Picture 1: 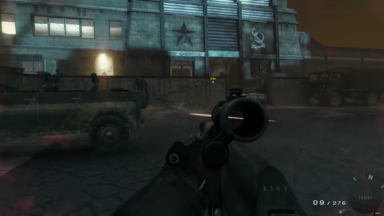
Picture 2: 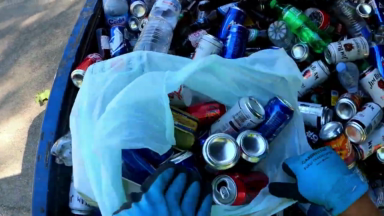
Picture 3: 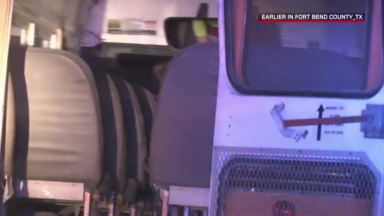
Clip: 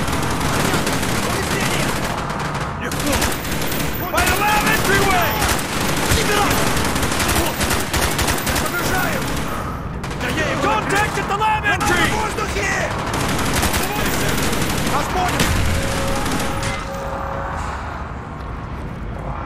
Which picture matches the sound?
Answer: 1